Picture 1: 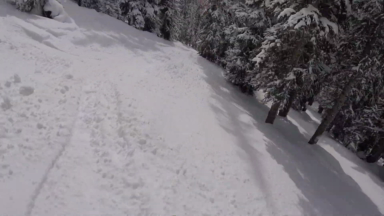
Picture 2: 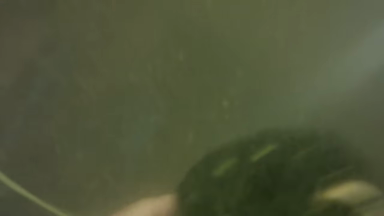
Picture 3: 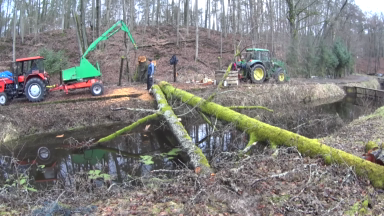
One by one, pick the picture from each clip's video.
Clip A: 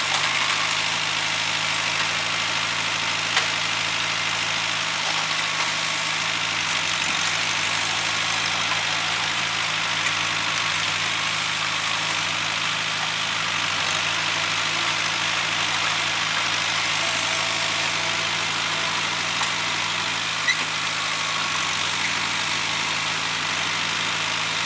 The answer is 3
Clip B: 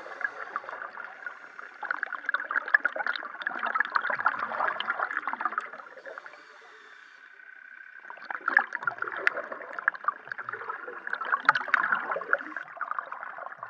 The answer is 2